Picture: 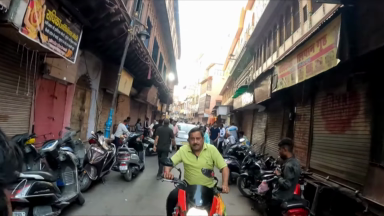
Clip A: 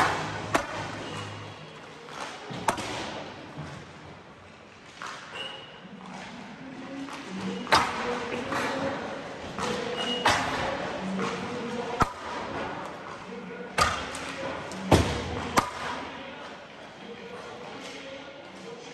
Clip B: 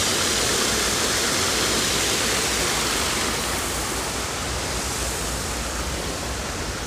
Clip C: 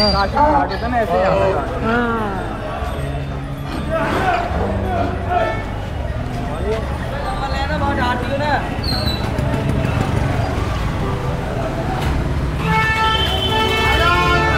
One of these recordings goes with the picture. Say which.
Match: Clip C